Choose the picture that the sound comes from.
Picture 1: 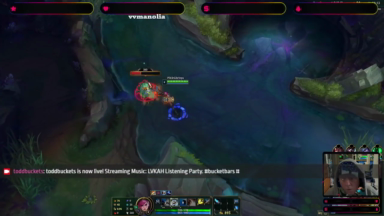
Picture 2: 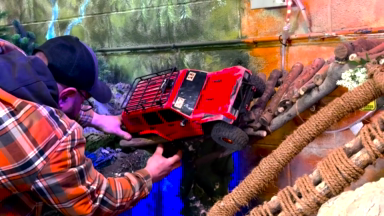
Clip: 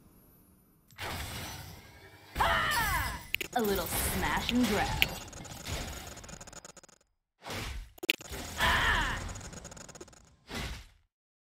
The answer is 1